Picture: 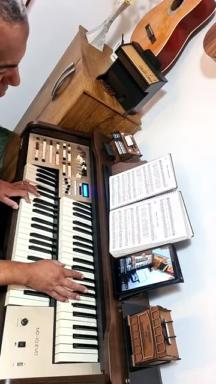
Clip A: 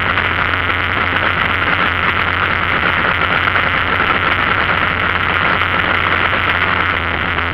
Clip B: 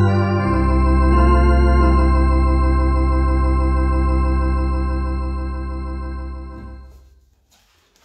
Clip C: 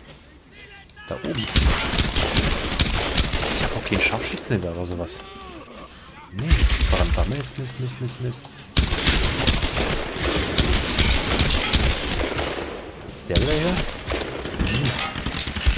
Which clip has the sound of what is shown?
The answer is B